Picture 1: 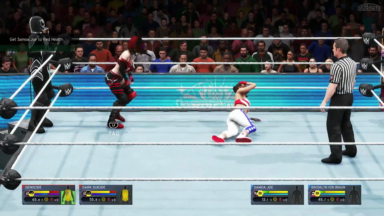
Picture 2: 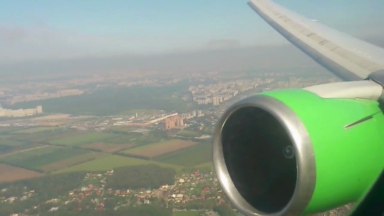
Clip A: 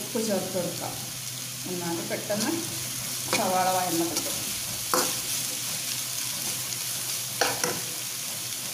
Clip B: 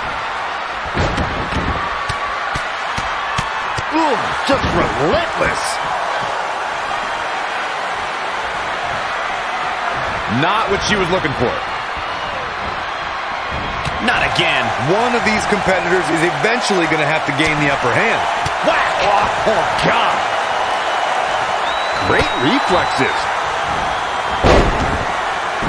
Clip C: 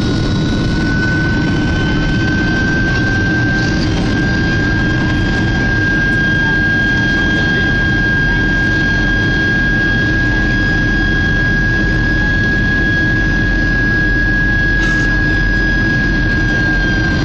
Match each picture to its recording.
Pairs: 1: B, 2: C